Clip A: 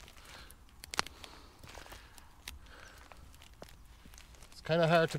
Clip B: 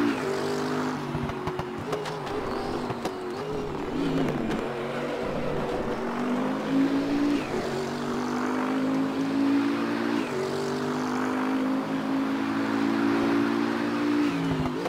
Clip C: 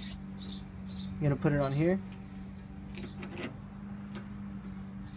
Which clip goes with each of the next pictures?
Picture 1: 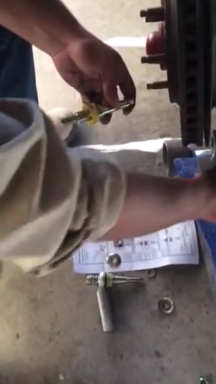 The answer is C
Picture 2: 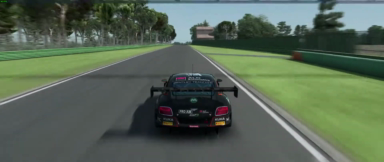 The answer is B